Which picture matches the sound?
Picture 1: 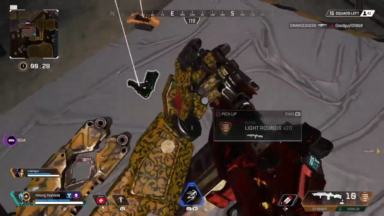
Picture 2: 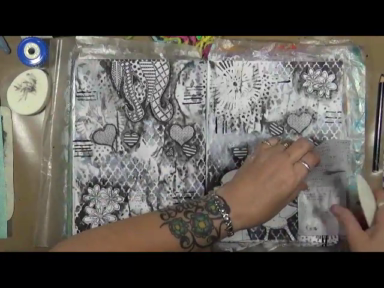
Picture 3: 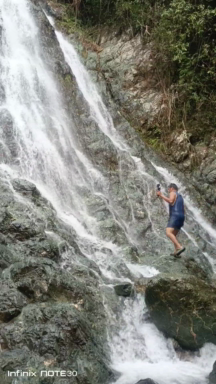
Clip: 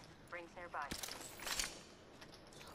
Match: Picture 1